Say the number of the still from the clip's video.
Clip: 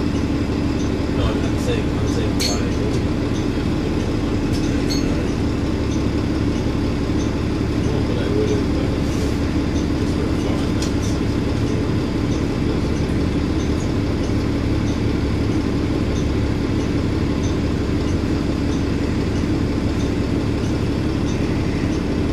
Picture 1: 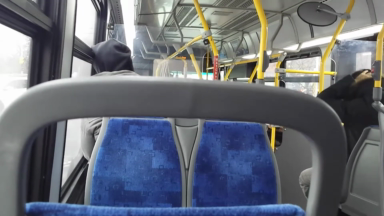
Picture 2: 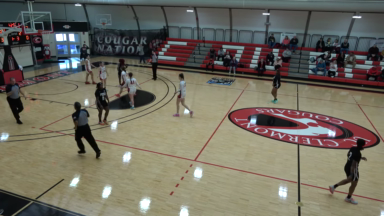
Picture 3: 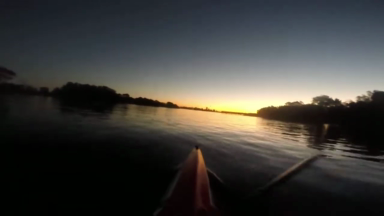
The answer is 1